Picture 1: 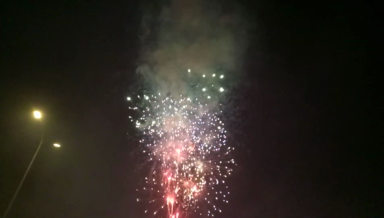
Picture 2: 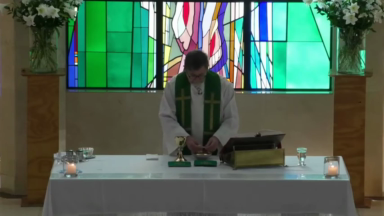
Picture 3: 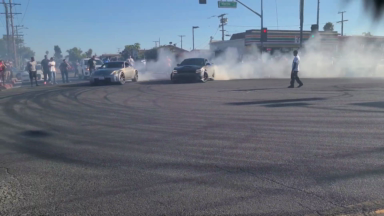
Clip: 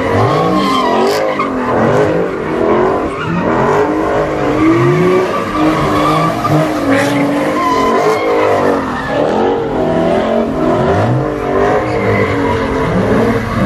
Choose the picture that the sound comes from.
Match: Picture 3